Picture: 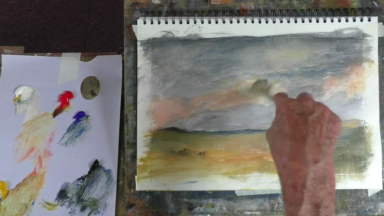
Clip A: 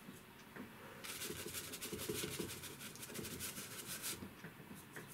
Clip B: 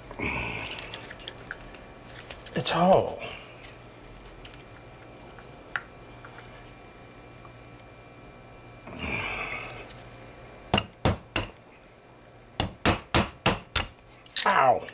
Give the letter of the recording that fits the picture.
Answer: A